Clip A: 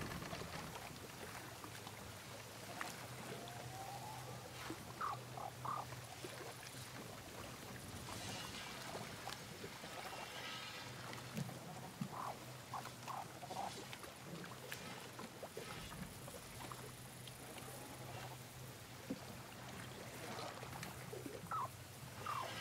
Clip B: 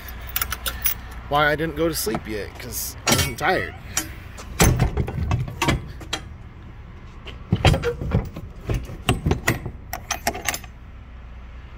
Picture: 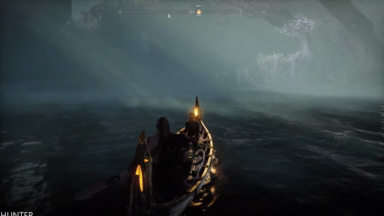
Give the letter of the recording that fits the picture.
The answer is A